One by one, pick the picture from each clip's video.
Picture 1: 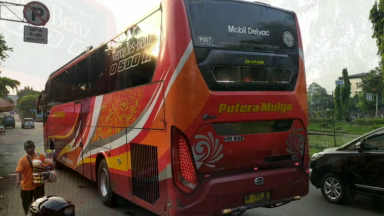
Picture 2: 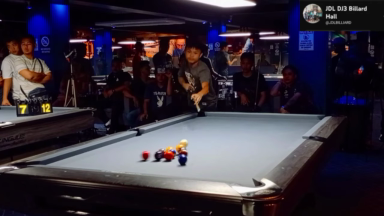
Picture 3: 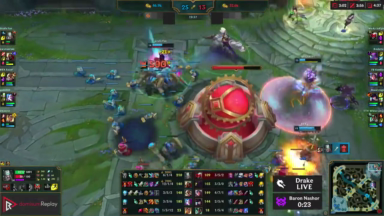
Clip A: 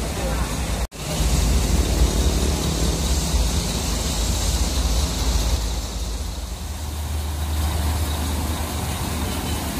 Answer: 1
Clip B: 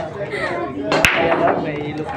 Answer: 2